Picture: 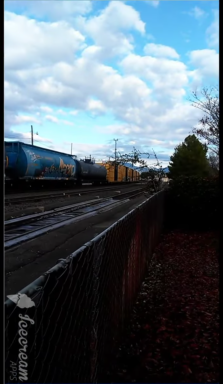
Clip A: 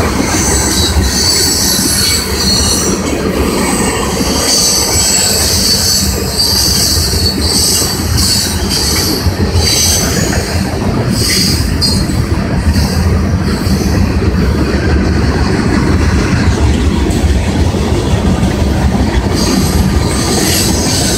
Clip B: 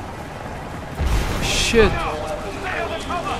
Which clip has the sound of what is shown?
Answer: A